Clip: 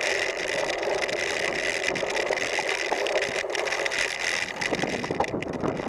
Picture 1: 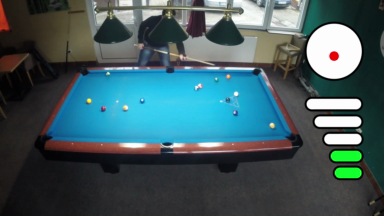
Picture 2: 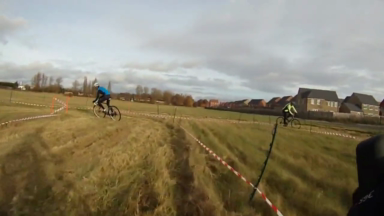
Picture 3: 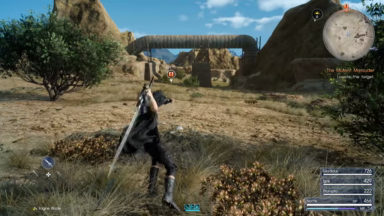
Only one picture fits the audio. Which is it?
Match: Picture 2